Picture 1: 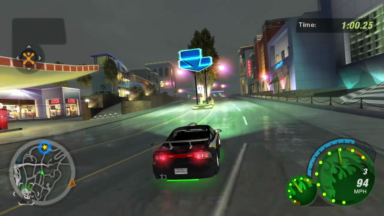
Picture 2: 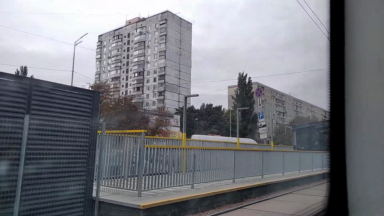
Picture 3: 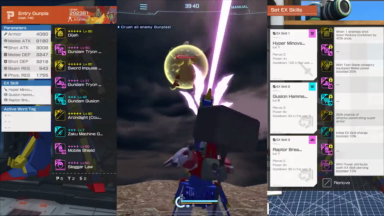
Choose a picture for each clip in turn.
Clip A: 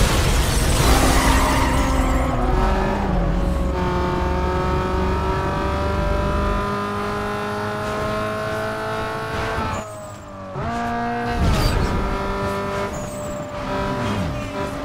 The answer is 1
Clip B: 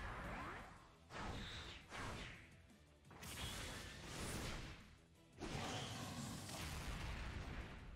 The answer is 3